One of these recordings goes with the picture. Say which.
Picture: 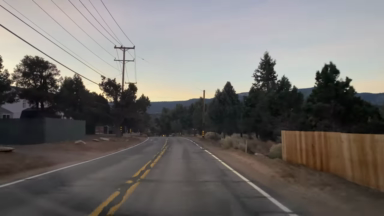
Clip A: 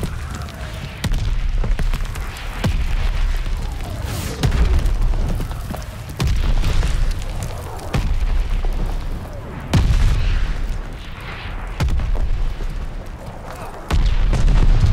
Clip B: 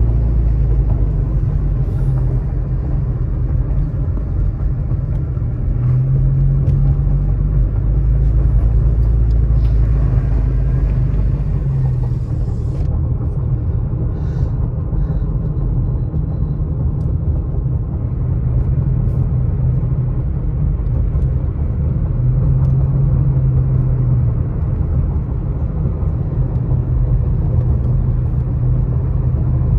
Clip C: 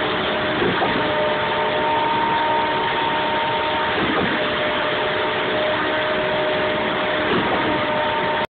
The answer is B